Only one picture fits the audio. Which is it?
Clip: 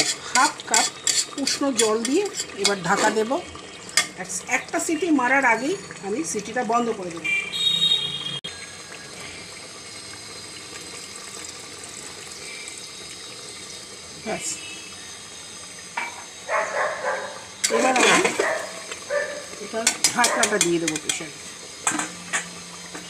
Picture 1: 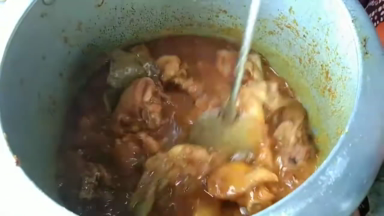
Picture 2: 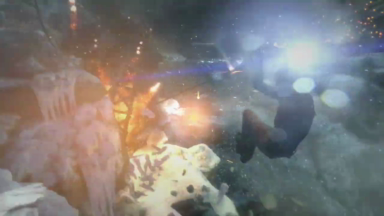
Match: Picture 1